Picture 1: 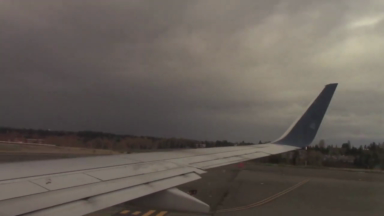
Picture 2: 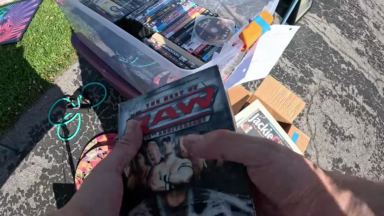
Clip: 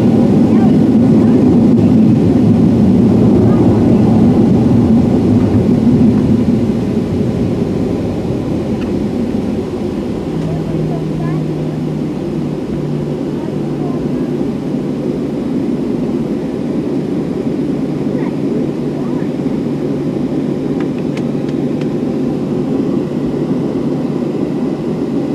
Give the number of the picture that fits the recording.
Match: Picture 1